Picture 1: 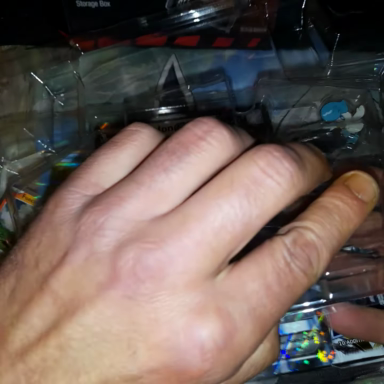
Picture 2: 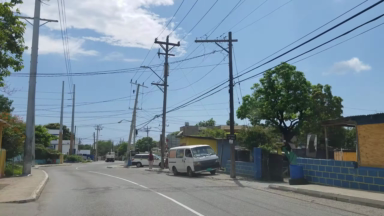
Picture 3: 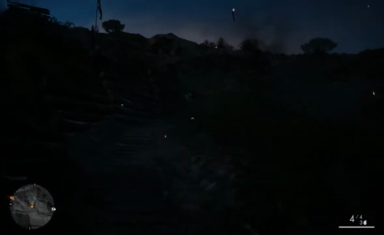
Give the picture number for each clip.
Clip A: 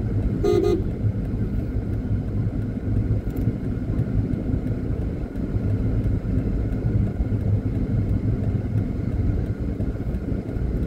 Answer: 2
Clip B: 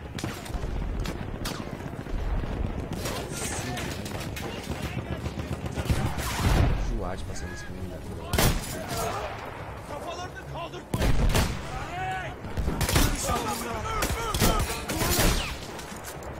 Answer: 3